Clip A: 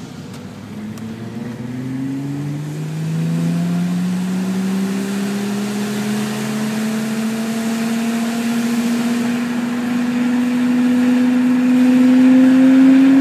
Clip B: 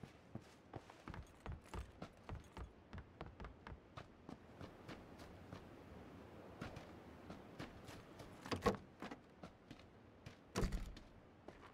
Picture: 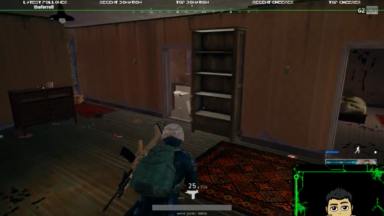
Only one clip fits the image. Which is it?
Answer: B